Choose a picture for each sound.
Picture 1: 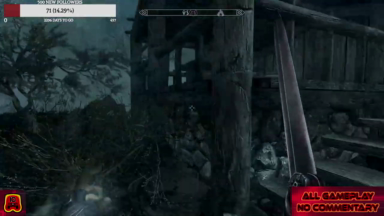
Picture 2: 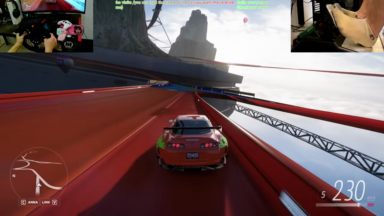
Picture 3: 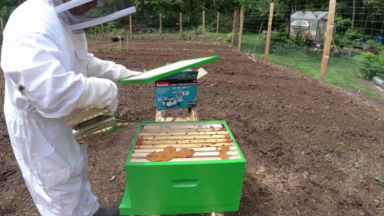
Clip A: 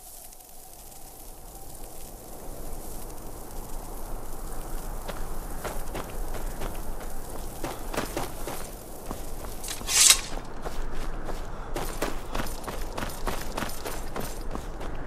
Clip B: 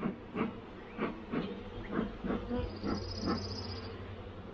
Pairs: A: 1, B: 3